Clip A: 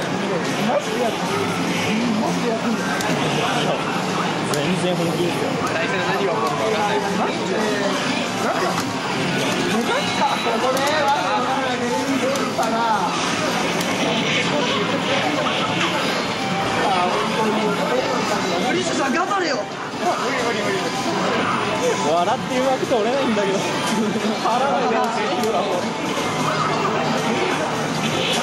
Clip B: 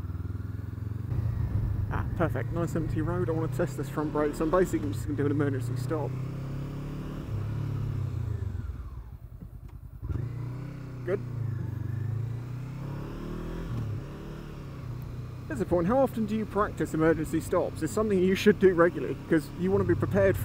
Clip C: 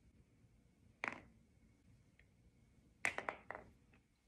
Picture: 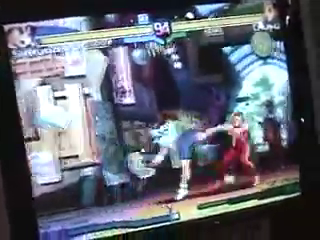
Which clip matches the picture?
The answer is A